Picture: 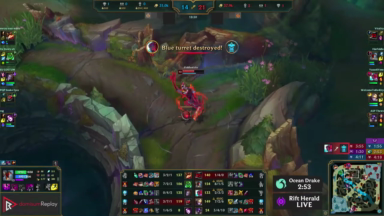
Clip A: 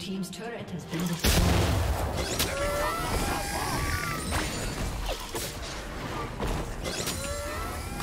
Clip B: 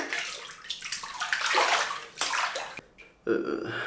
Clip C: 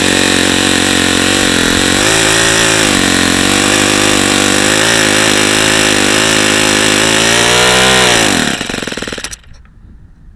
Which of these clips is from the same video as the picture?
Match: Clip A